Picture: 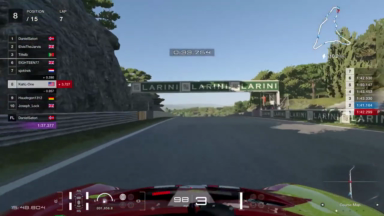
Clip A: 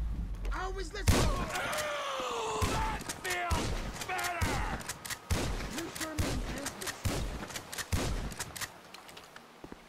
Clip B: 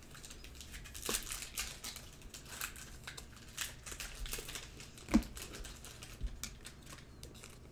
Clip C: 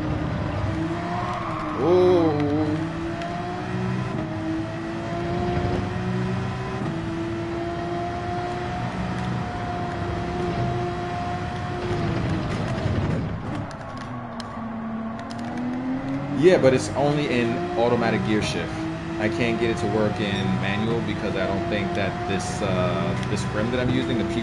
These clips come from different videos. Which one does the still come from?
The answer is C